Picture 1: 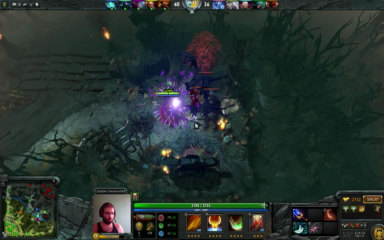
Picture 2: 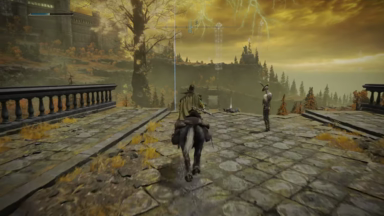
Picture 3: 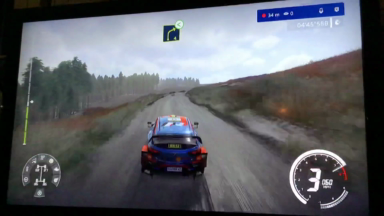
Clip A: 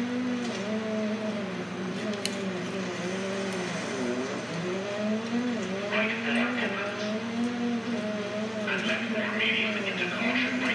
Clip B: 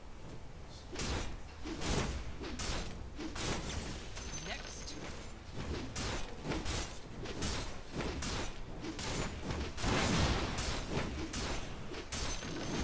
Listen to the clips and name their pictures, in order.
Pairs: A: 3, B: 1